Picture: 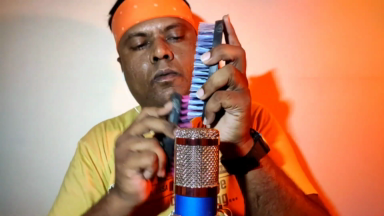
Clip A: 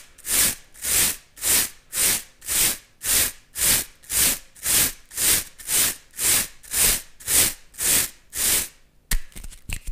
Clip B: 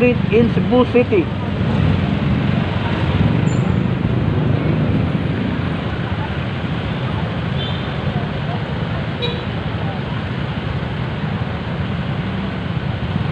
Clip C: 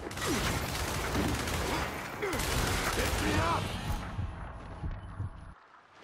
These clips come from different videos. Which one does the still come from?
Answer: A